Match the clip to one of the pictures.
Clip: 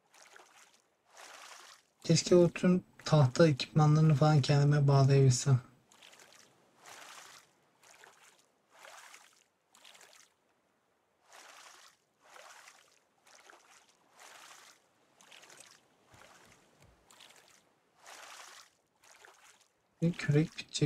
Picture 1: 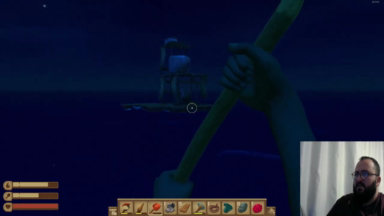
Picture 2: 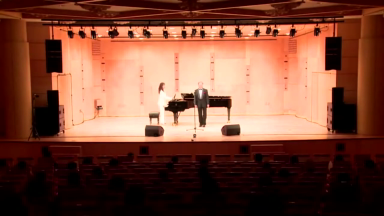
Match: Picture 1